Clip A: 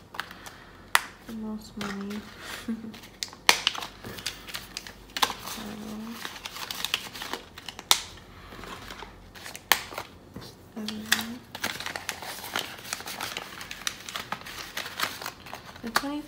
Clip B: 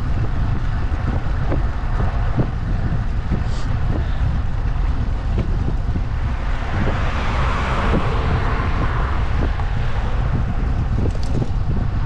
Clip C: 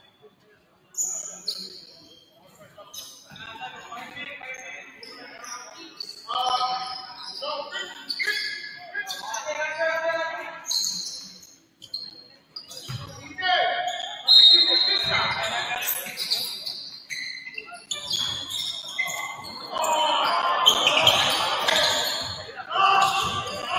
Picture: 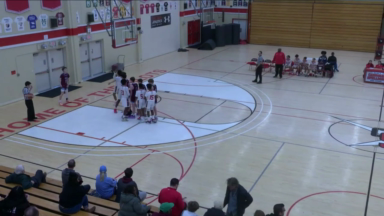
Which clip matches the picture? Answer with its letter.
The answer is C